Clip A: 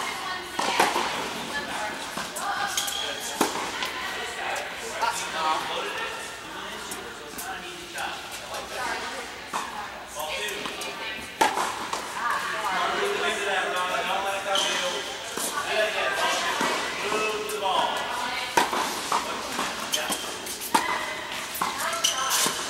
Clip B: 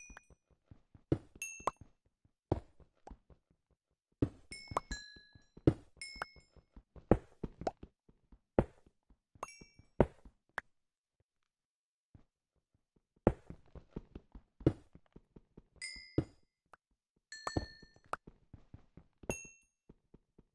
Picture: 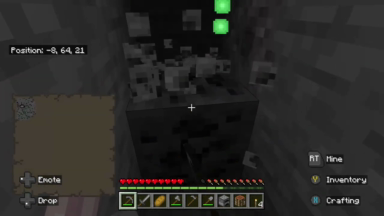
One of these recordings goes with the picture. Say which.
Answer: B